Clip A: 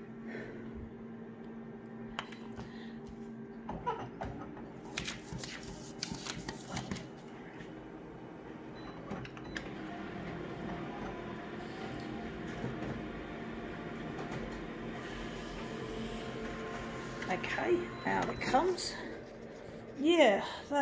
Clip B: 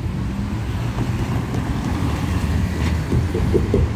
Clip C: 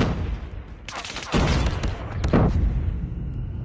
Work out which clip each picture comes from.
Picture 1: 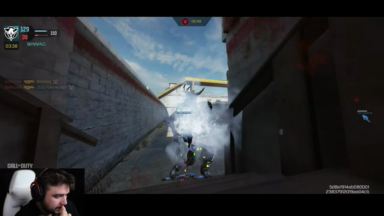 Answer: C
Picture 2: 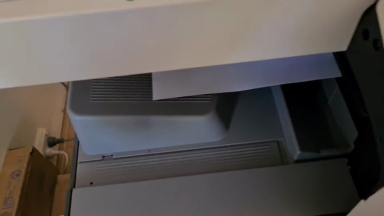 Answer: A